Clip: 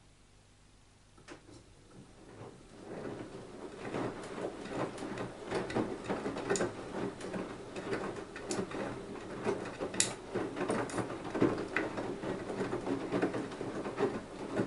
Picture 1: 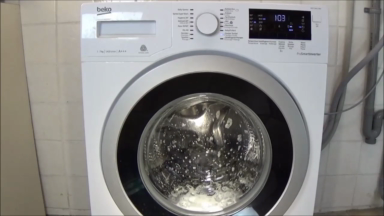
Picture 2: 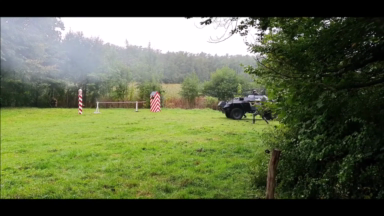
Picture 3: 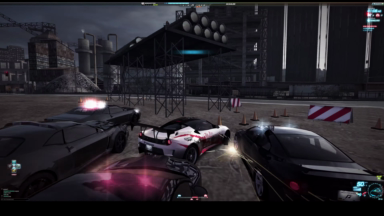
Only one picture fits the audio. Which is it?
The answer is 1